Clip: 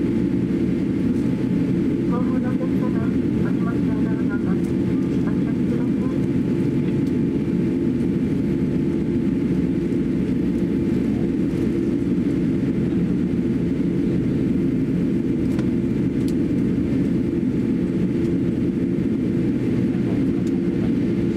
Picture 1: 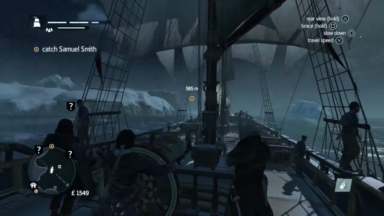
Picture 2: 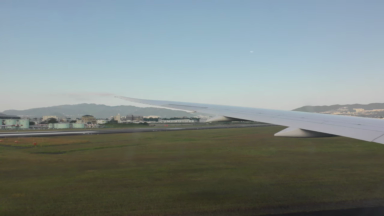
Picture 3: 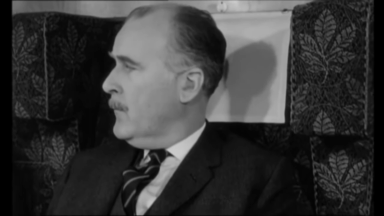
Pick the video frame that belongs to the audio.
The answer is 2